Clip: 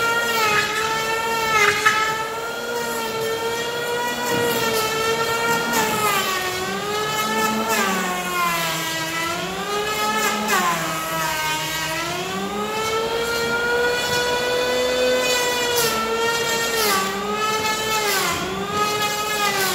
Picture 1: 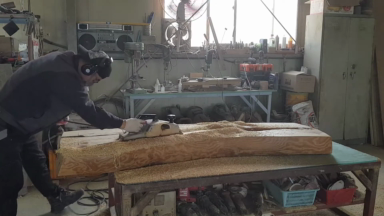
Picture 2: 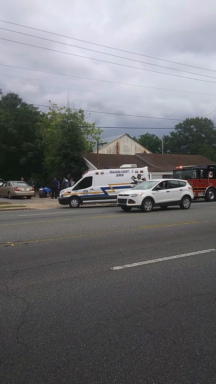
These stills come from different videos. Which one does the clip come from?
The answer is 1